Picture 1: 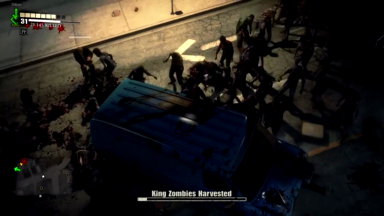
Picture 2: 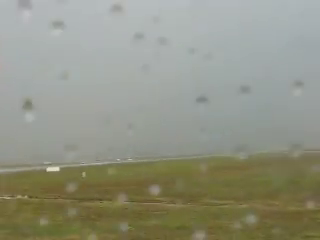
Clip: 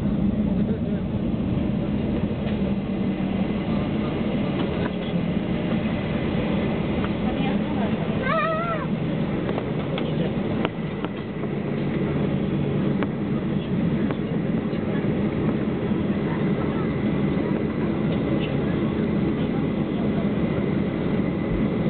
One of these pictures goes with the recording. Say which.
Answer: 2